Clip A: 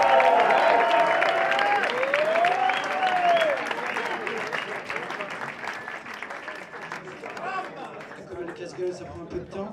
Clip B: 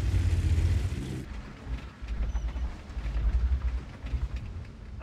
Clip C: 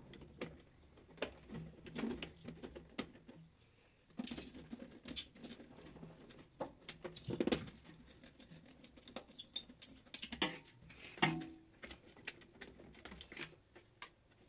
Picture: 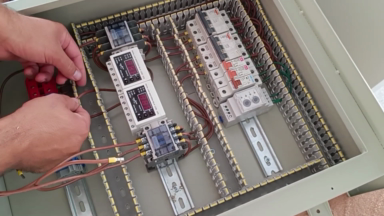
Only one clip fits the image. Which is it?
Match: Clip C